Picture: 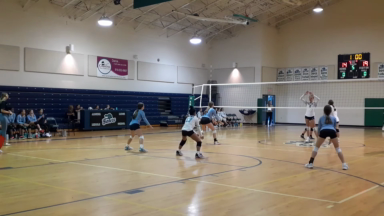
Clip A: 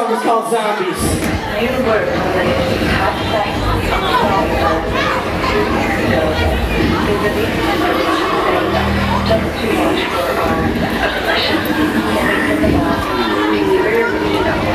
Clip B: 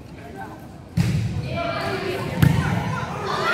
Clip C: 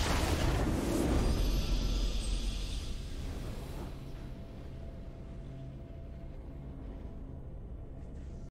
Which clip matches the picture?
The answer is B